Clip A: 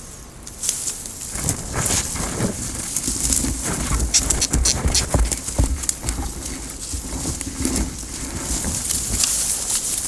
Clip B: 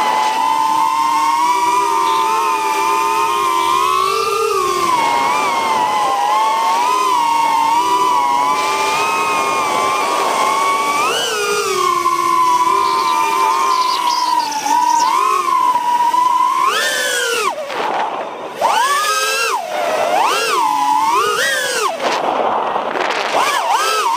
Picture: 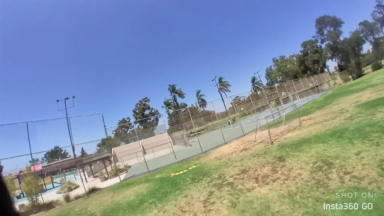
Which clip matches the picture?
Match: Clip B